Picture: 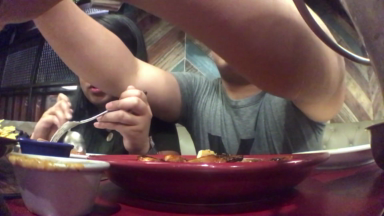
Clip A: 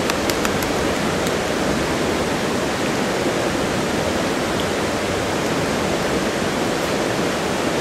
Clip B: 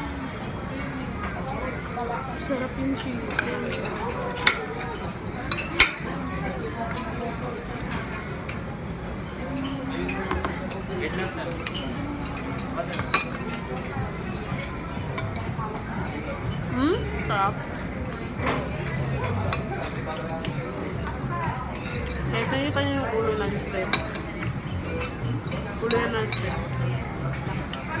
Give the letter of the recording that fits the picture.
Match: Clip B